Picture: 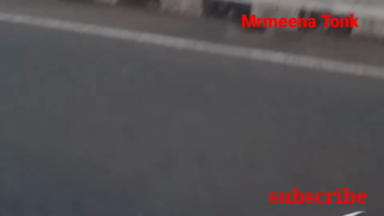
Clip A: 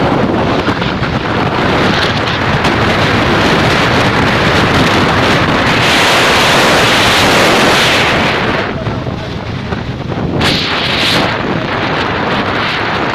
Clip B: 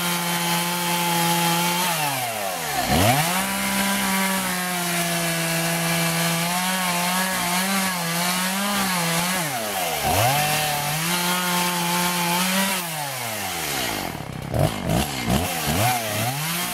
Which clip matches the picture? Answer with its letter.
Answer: A